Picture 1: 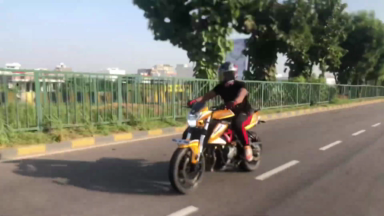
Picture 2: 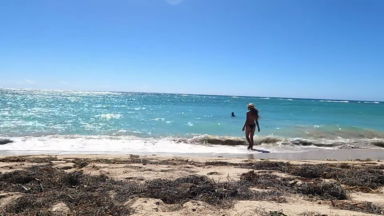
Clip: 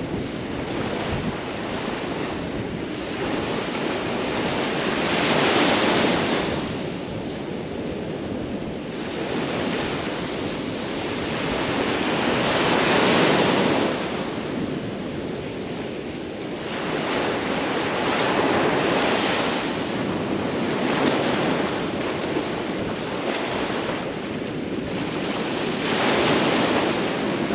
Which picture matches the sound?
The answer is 2